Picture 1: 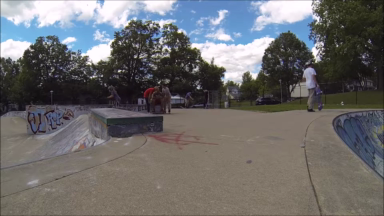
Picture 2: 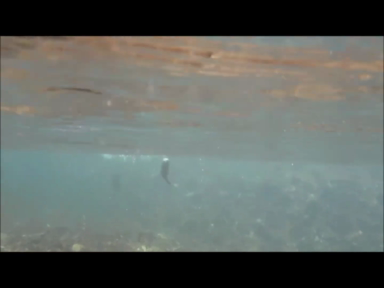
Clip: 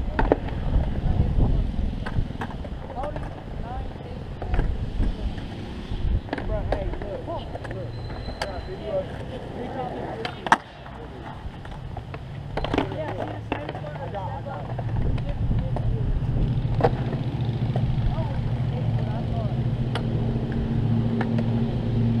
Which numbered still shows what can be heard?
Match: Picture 1